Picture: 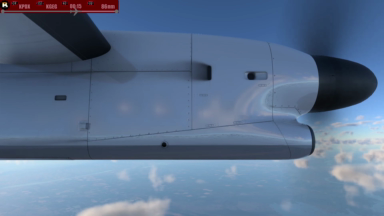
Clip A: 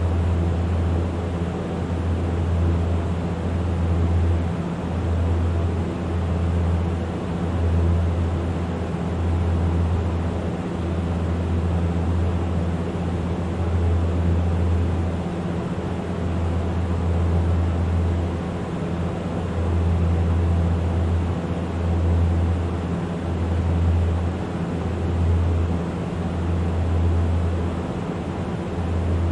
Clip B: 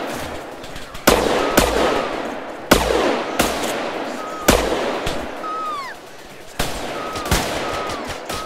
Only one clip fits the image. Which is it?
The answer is A